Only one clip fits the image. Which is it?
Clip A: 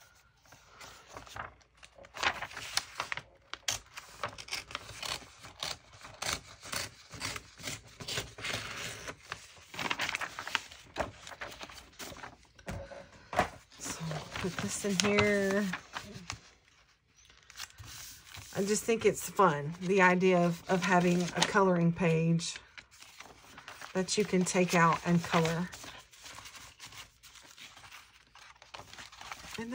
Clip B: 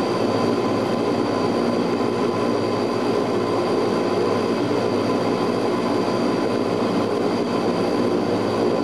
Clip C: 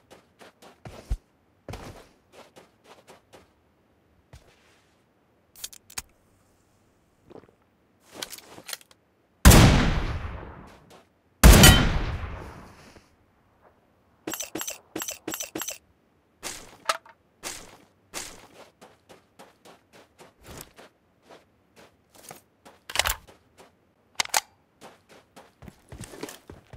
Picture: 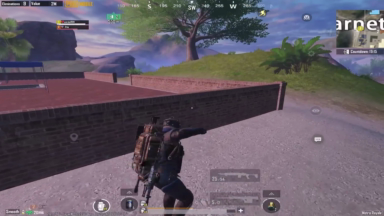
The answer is C